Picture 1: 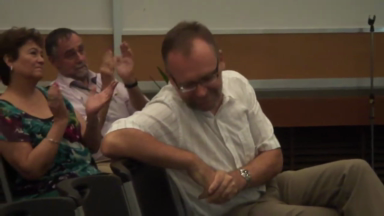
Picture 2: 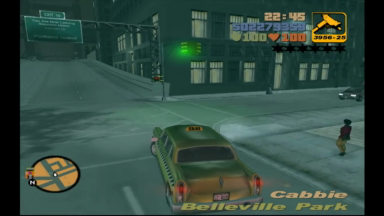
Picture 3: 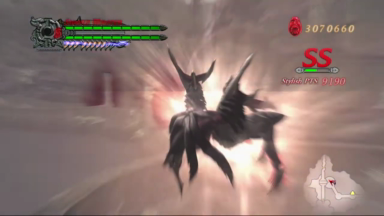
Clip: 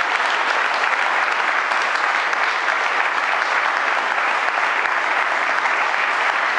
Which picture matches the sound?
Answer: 1